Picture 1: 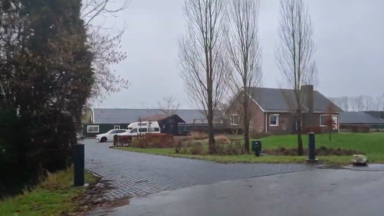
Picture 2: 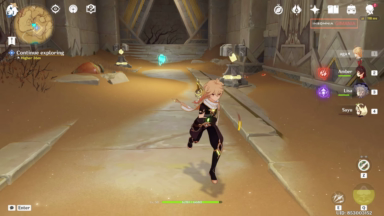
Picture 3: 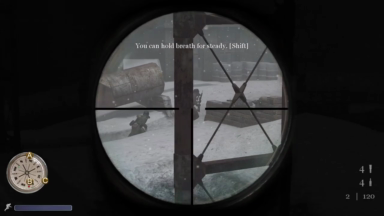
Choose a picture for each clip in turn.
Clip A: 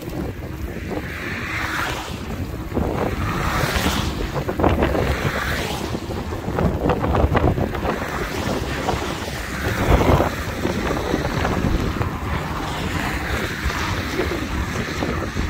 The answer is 1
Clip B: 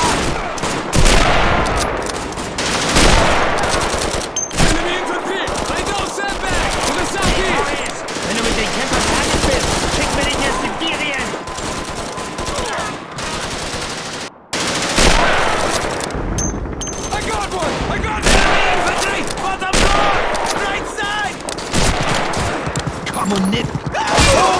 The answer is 3